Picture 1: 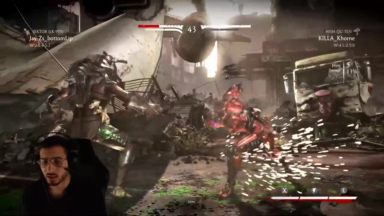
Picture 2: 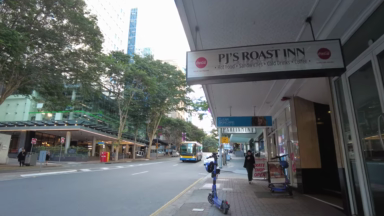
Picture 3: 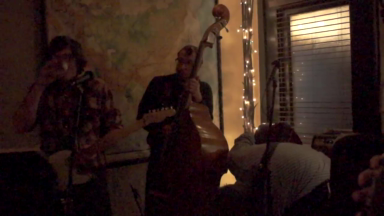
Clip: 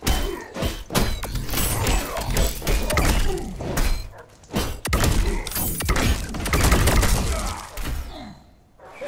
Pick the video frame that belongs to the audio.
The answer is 1